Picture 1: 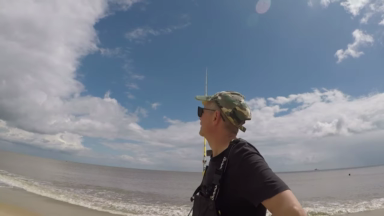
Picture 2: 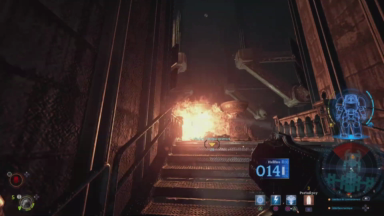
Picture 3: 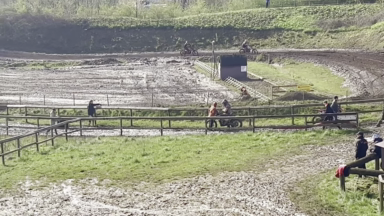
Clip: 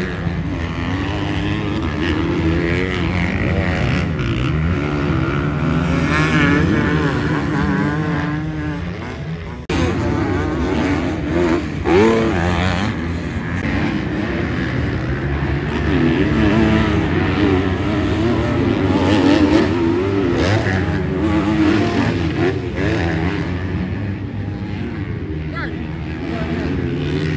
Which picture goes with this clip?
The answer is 3